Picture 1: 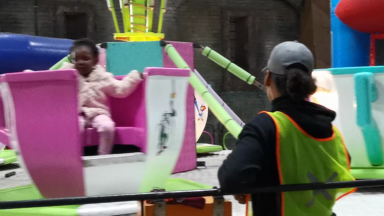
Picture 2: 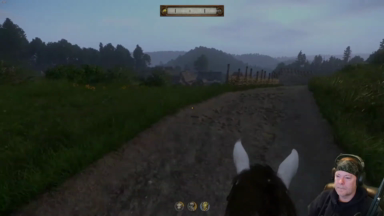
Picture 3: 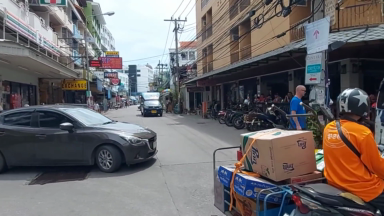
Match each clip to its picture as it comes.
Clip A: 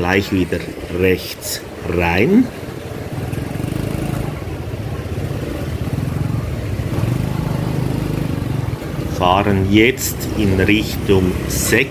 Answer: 3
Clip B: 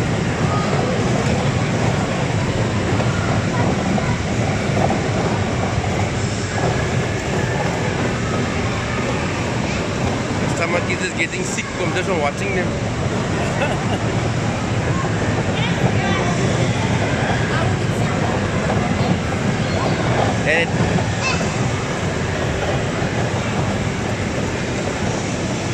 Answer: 1